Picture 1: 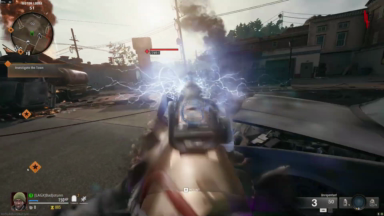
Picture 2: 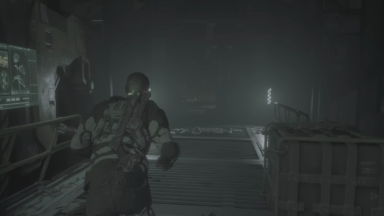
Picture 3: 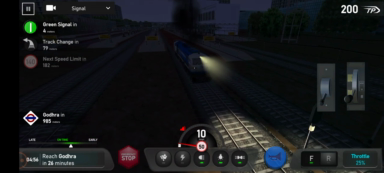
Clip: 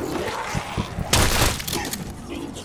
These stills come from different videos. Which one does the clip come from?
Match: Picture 1